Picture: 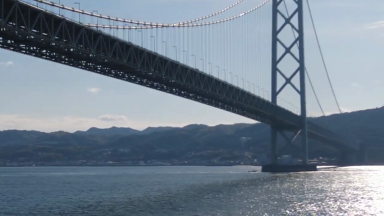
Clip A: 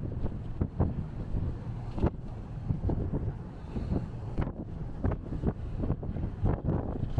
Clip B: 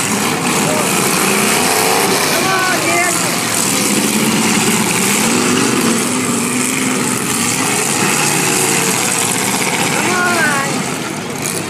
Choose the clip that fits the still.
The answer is A